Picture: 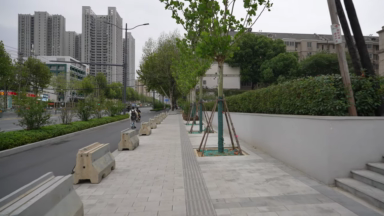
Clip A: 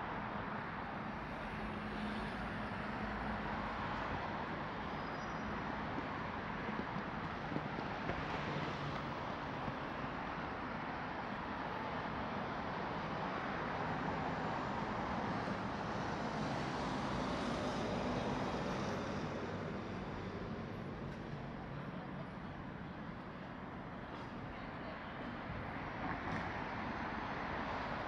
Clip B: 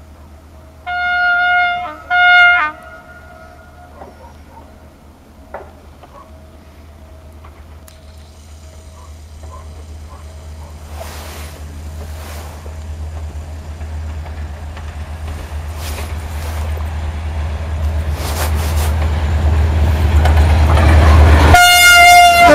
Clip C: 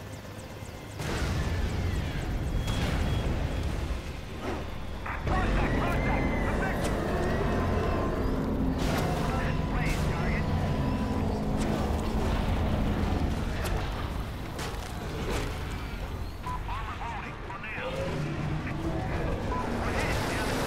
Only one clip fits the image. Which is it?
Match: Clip A